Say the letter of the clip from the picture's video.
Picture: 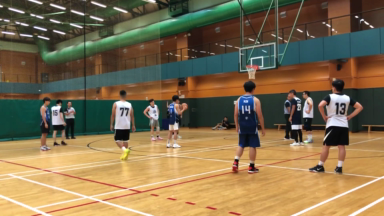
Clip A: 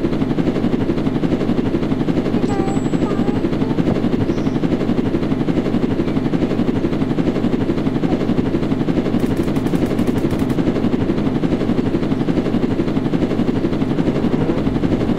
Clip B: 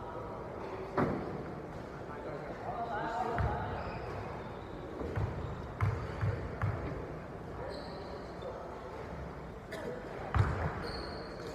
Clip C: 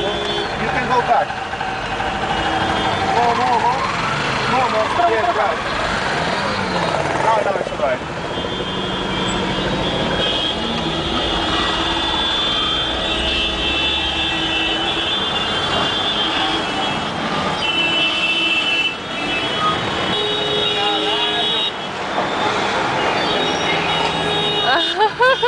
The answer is B